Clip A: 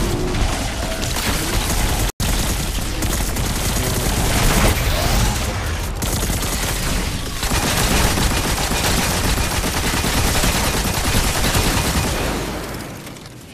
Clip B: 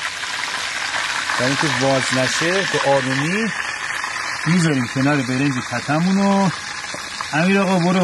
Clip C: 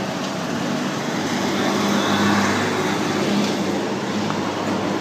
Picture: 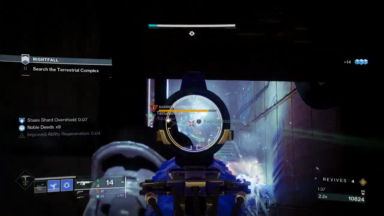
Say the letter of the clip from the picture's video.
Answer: A